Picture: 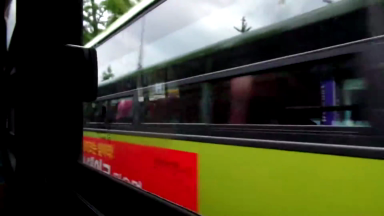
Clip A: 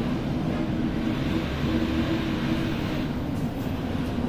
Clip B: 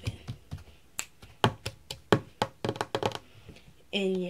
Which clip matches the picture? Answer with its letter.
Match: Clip A